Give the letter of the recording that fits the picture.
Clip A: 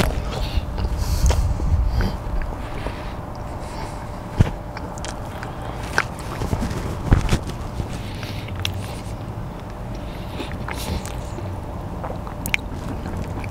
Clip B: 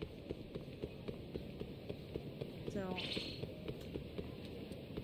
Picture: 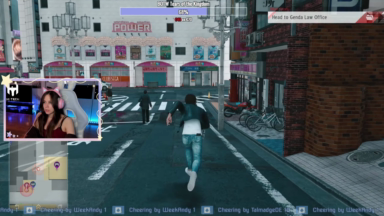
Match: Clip B